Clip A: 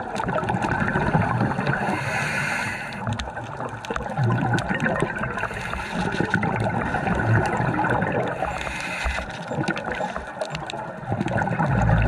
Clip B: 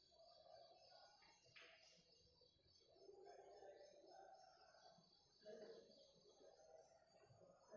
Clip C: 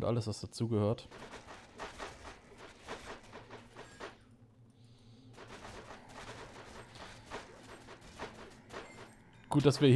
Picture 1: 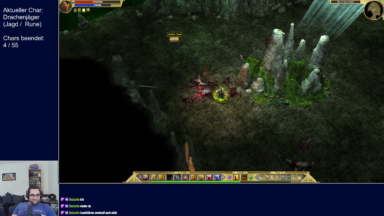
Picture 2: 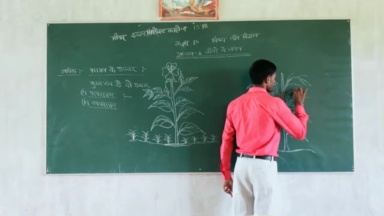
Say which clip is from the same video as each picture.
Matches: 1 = C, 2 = B